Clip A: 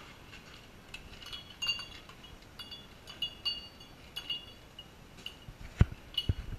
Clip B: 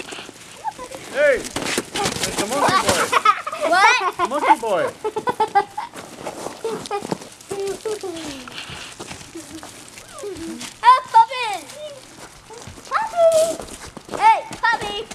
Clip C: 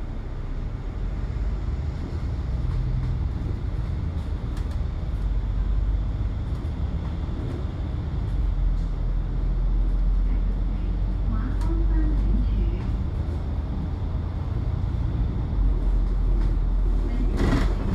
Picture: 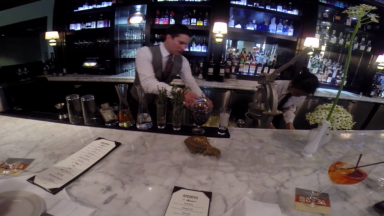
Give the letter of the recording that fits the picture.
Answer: A